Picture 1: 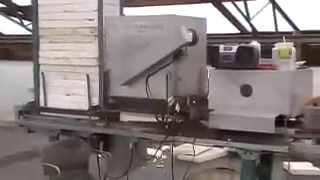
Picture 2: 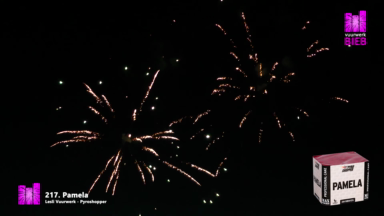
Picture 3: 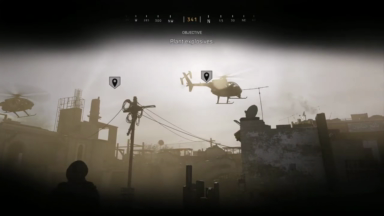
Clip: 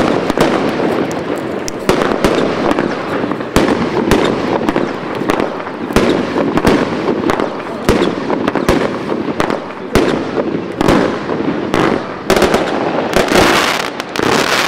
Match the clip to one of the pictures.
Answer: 2